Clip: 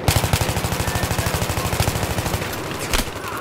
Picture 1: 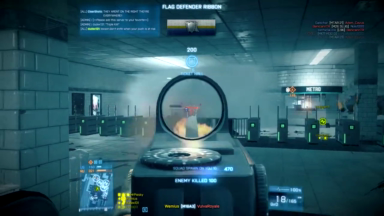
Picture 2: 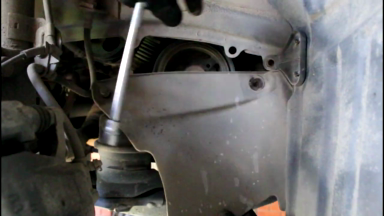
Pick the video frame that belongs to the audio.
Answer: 1